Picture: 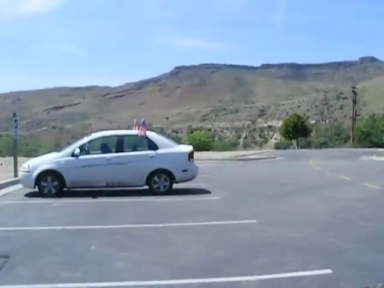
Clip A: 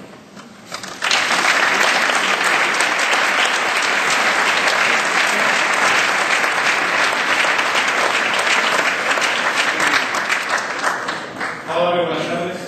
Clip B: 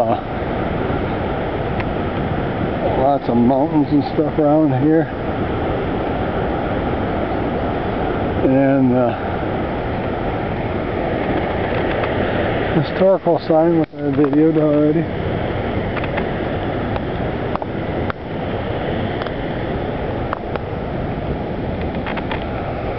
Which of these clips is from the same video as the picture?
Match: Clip B